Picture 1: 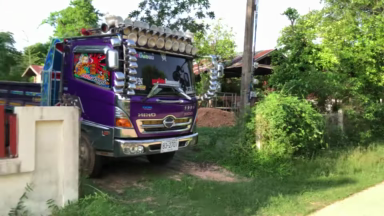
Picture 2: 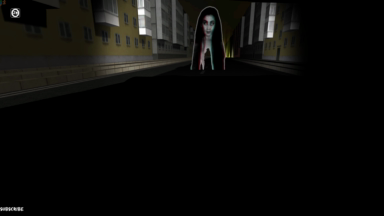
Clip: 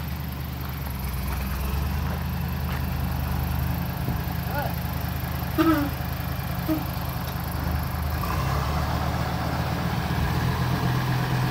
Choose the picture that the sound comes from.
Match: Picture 1